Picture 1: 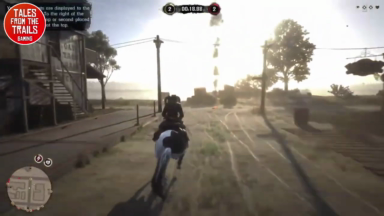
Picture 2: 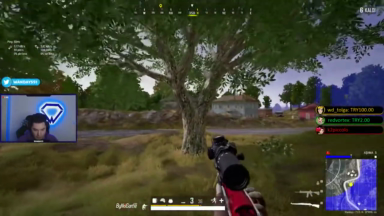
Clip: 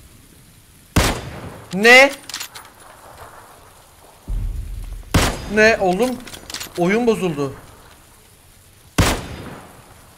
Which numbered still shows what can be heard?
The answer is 2